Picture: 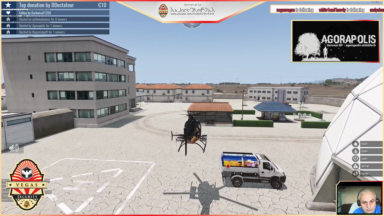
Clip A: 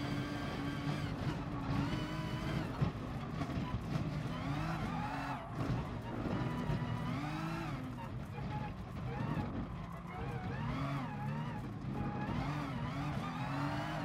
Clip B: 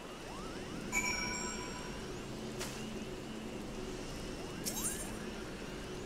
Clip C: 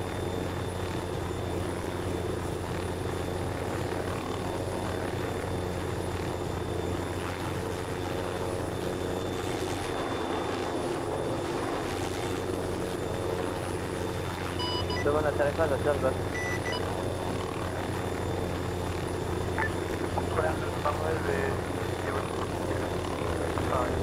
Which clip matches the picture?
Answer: C